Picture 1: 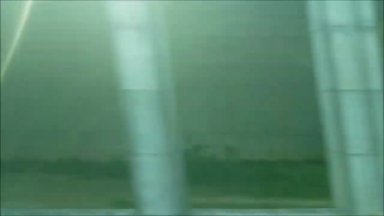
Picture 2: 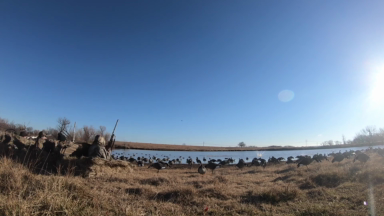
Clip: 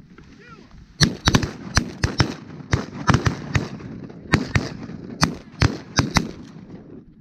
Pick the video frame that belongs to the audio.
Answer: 2